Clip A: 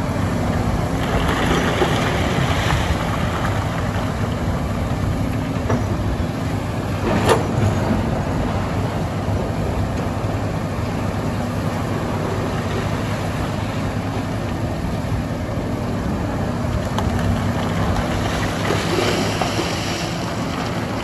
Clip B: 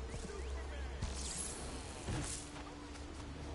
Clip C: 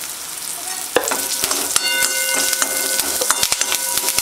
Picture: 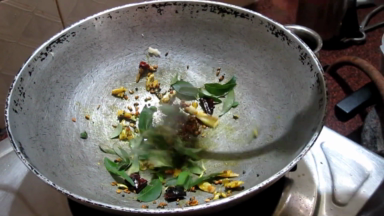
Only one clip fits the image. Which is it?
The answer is C